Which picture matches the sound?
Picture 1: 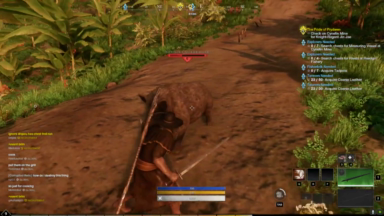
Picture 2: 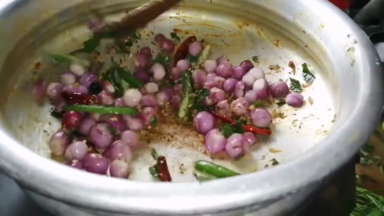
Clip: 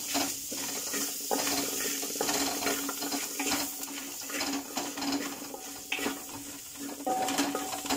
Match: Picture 2